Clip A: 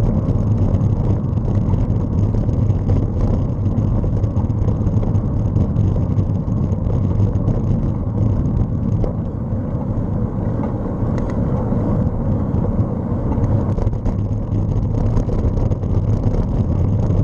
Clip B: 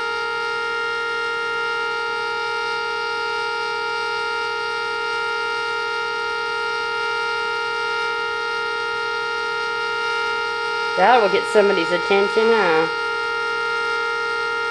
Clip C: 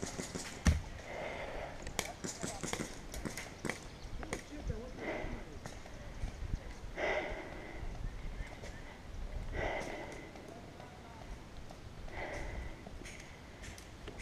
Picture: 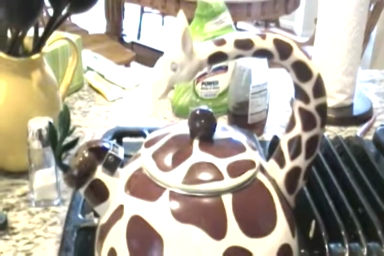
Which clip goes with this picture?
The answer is B